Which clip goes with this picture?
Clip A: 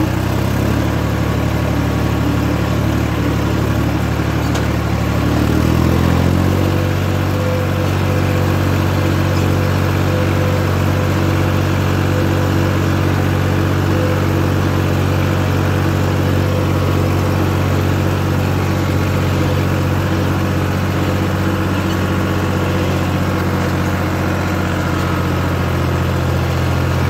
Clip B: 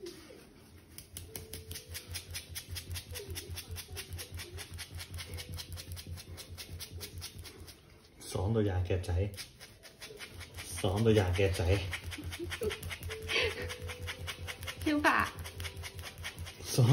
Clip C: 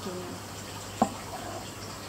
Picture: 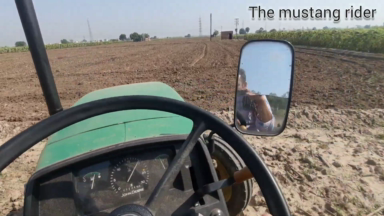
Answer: A